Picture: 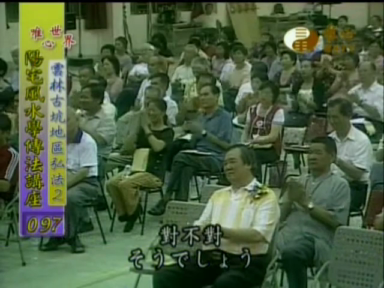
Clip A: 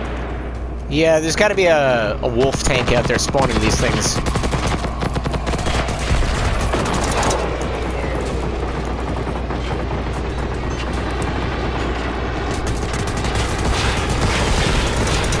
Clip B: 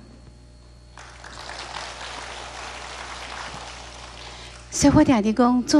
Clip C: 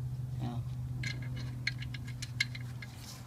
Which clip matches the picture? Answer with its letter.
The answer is B